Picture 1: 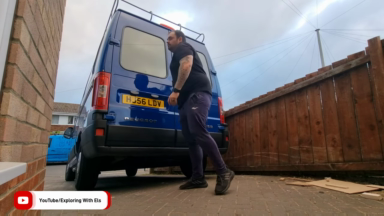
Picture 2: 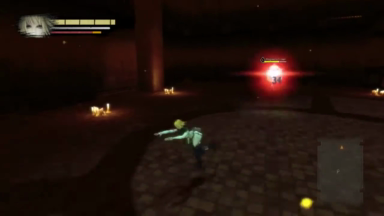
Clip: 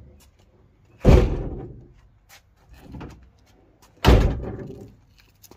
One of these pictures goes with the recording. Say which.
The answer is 1